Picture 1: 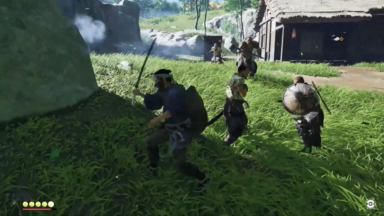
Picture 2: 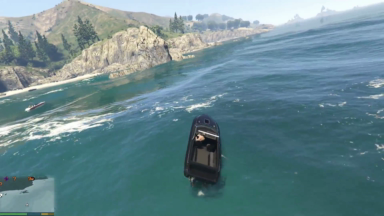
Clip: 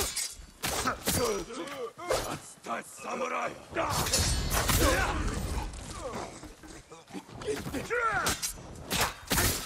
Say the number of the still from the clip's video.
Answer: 1